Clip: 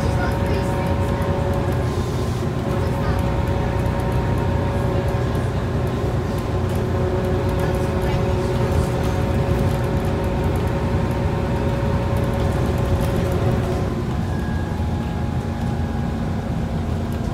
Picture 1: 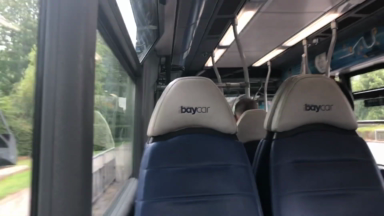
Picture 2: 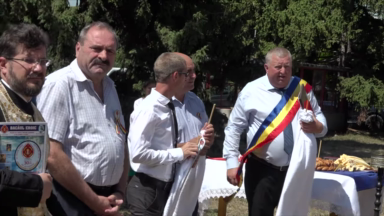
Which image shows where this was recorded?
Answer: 1